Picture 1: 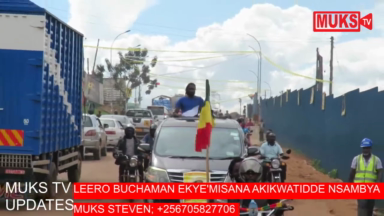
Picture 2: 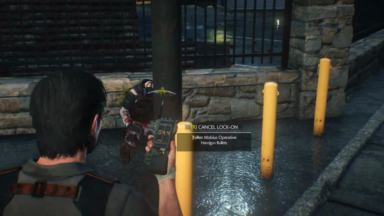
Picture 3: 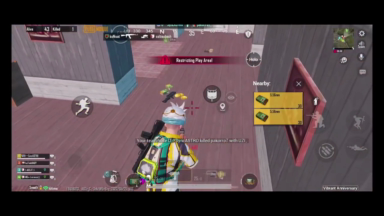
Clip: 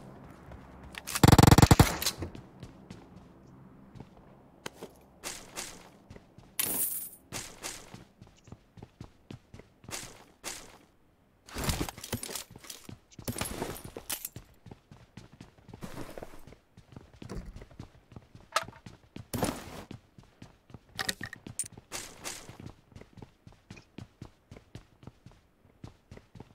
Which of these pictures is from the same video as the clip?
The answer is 3